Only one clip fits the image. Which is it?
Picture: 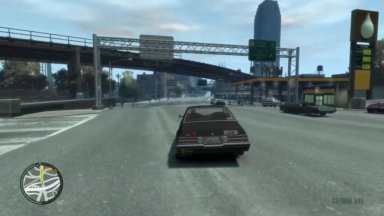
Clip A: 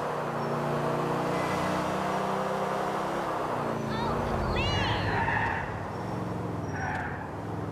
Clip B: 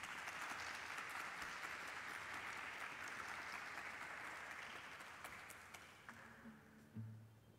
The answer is A